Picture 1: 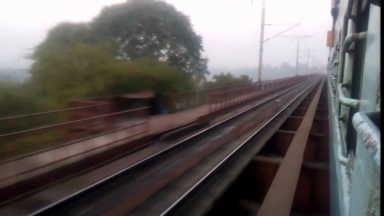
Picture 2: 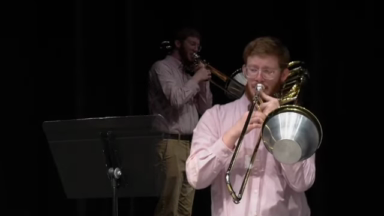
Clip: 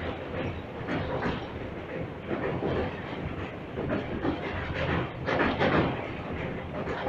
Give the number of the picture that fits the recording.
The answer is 1